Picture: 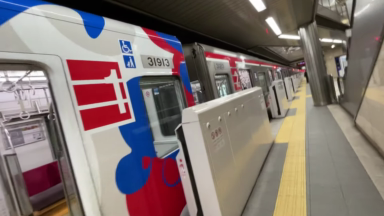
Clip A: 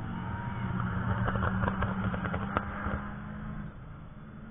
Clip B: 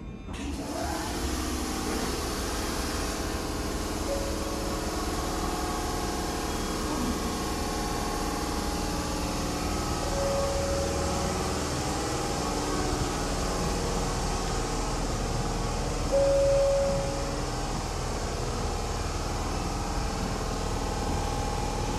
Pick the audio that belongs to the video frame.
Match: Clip B